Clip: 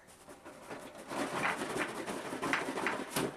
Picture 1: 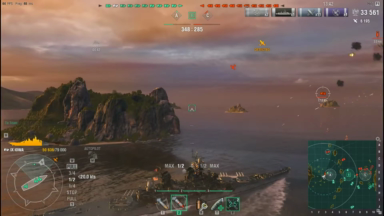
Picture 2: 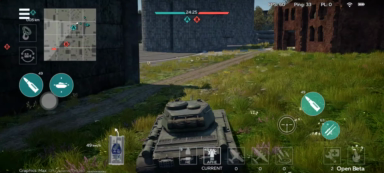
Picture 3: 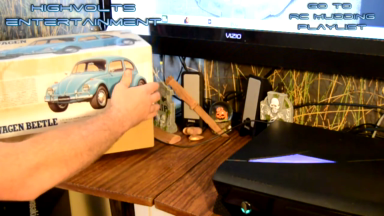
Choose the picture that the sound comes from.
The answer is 3